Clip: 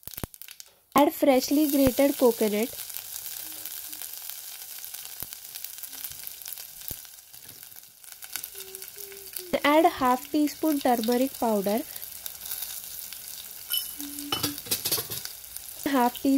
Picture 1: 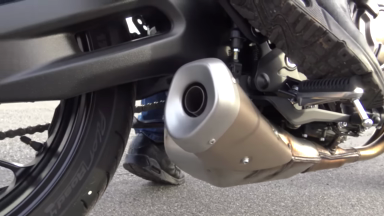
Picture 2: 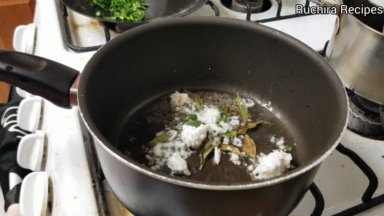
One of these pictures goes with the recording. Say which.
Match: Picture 2